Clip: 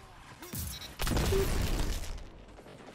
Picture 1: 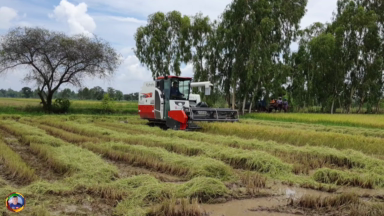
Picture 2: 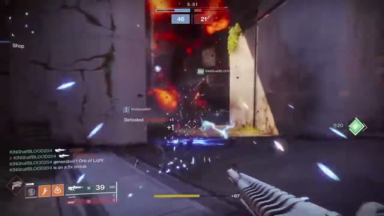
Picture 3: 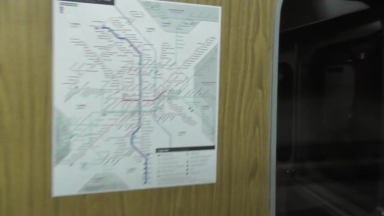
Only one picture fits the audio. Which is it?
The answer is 2